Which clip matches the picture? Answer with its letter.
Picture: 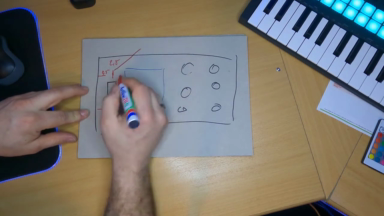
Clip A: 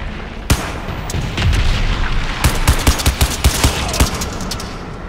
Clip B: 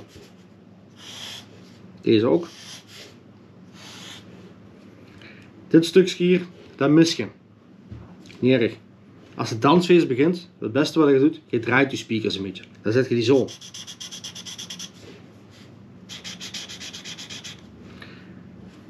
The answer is B